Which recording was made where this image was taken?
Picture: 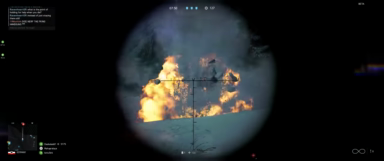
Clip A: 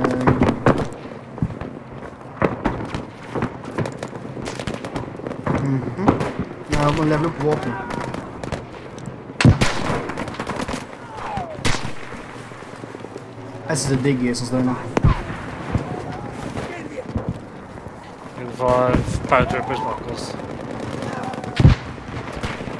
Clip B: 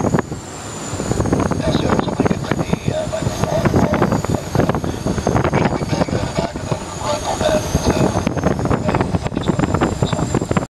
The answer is A